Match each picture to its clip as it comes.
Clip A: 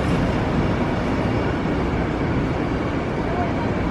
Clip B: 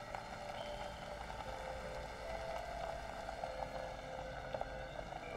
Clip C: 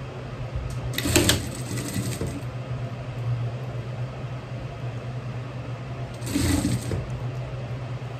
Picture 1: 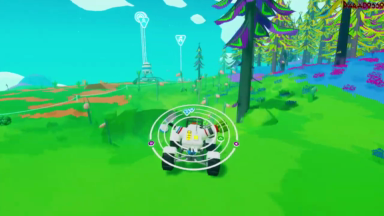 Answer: B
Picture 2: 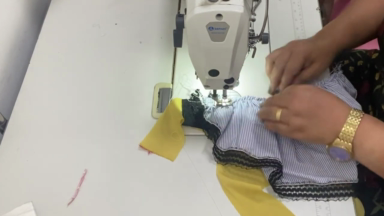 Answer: C